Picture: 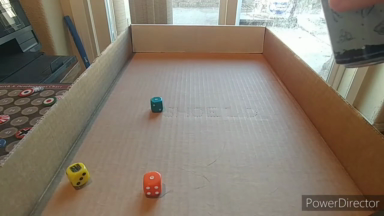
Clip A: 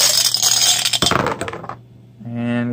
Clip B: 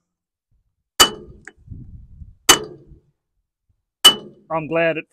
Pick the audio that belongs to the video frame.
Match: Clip A